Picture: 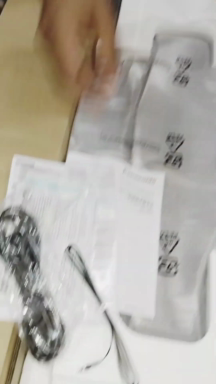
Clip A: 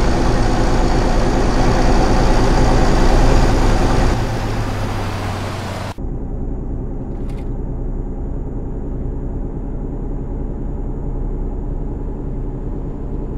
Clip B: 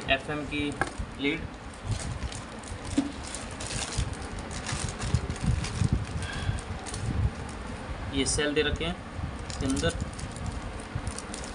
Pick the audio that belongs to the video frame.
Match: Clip B